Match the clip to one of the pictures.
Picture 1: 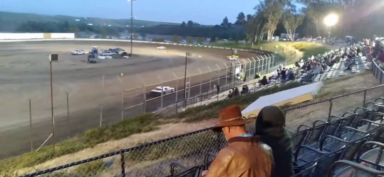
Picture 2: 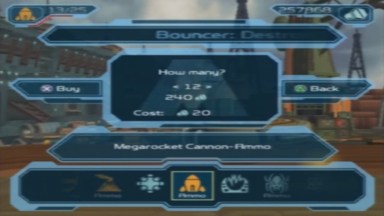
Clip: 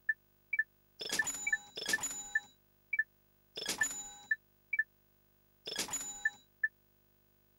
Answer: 2